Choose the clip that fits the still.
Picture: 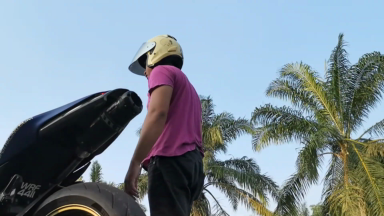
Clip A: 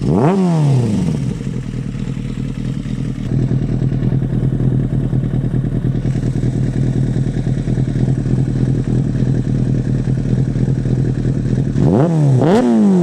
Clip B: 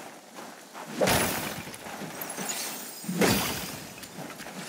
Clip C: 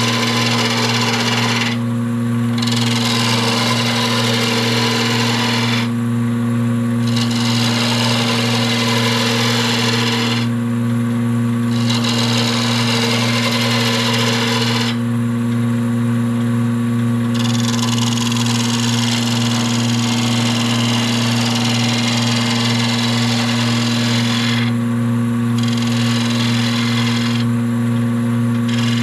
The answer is A